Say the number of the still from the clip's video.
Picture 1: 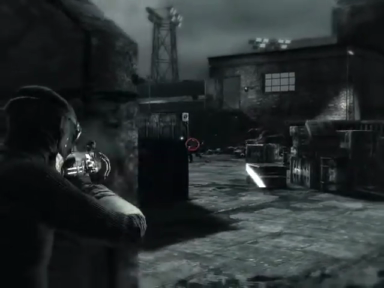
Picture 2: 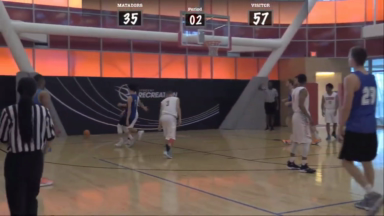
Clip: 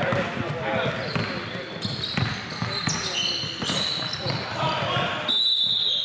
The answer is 2